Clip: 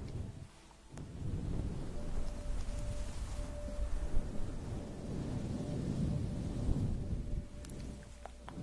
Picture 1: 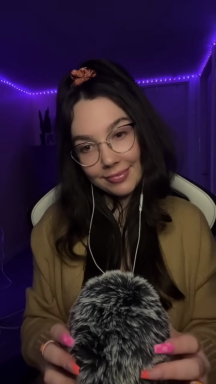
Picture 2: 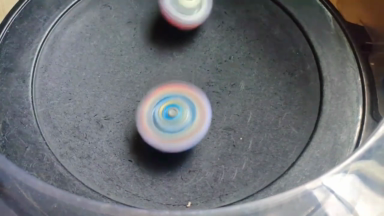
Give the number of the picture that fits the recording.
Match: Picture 1